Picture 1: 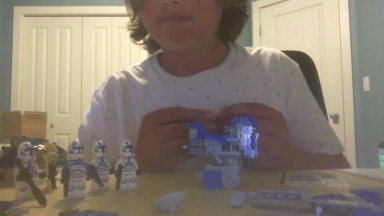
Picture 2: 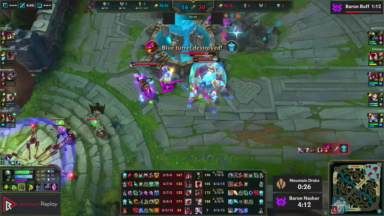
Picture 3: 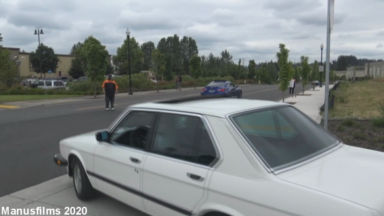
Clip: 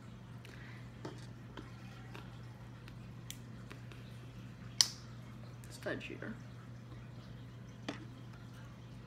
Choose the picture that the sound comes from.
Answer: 1